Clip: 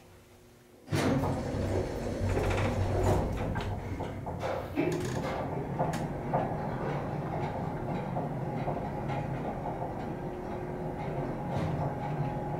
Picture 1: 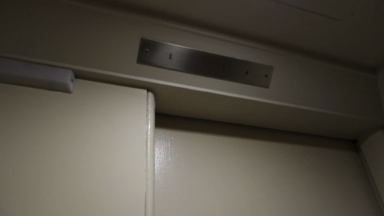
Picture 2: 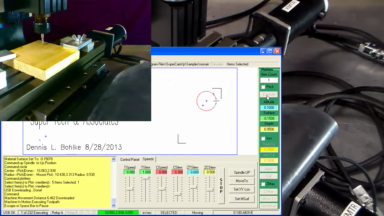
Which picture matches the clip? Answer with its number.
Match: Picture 1